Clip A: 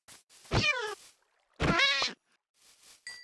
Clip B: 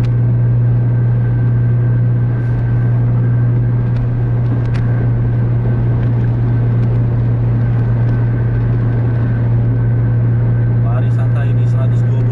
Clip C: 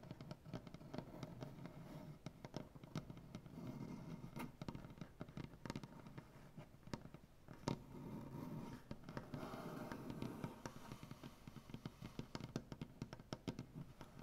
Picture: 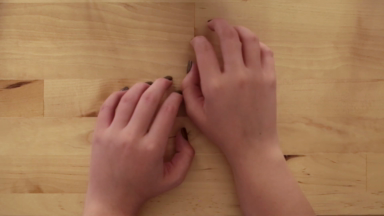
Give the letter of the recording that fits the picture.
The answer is C